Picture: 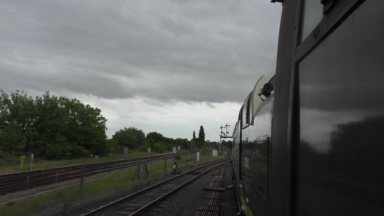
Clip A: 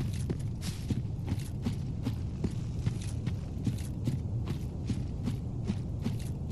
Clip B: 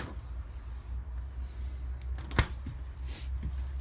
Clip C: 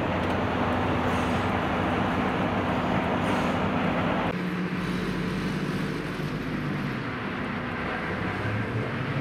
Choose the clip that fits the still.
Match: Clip C